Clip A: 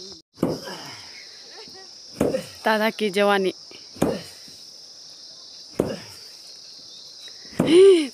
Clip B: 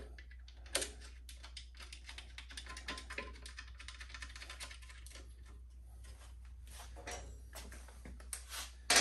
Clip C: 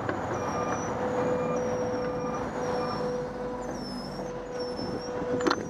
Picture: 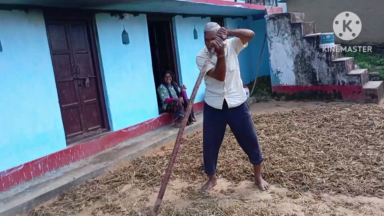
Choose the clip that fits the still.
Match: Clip A